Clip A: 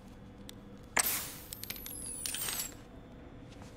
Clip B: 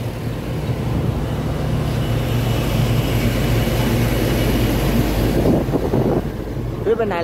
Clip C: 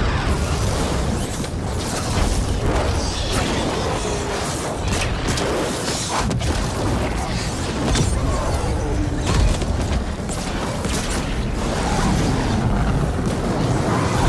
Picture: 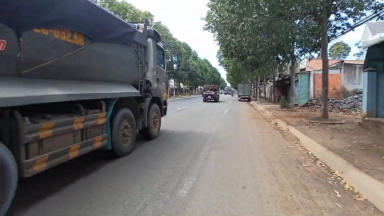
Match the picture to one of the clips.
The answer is B